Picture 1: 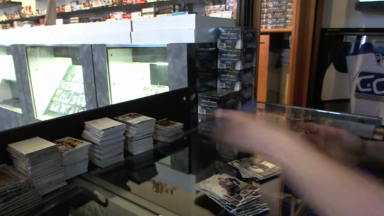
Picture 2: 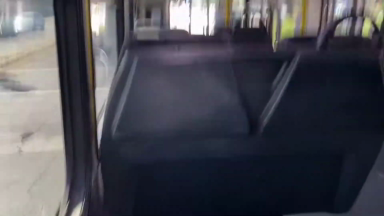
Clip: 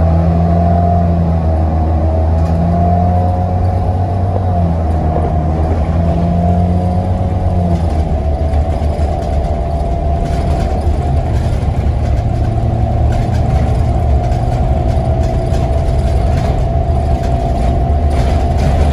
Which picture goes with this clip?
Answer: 2